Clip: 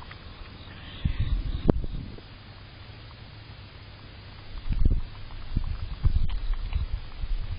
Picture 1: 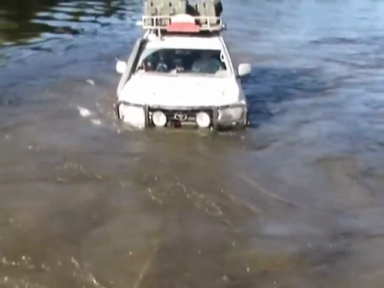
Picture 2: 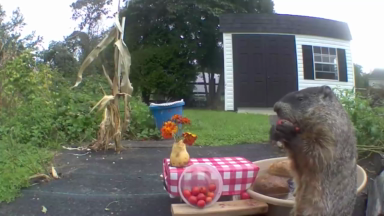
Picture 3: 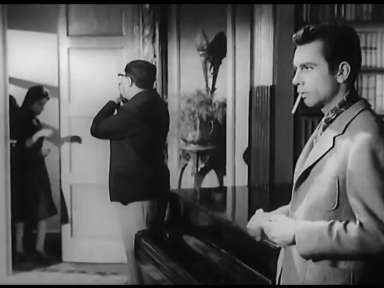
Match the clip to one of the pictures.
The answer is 2